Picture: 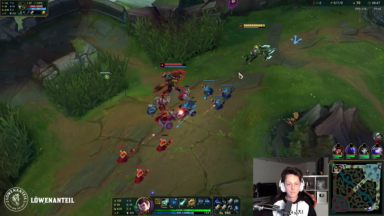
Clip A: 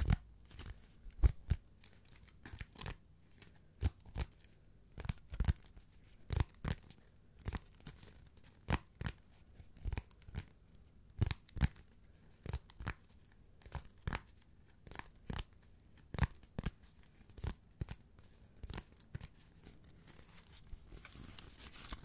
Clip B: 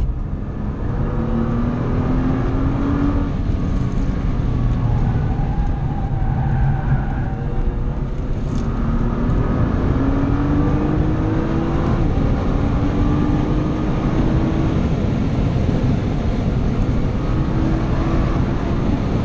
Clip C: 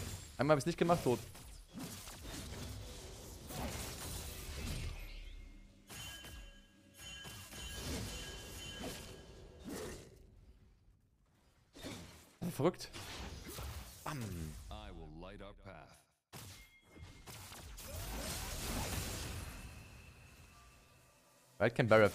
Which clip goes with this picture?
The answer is C